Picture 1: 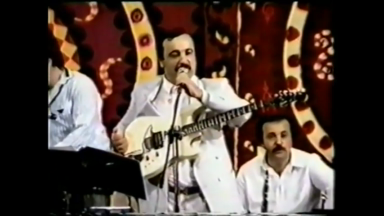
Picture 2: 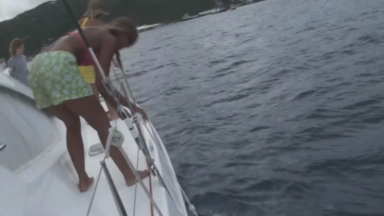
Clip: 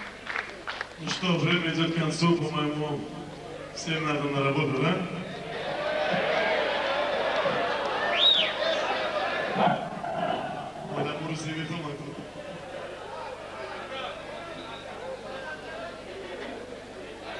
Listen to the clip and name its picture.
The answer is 1